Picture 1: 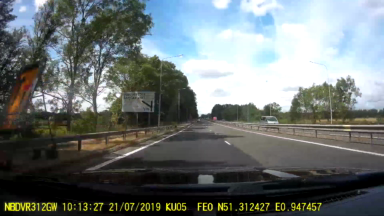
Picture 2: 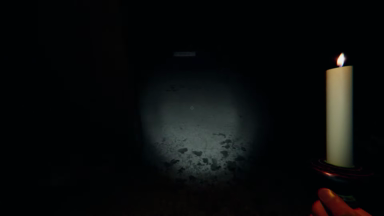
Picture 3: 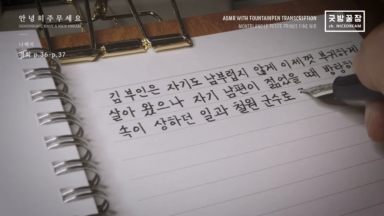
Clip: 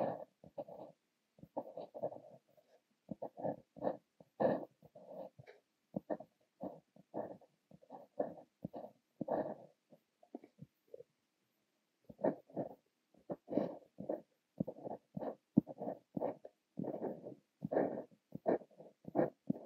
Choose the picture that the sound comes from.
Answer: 3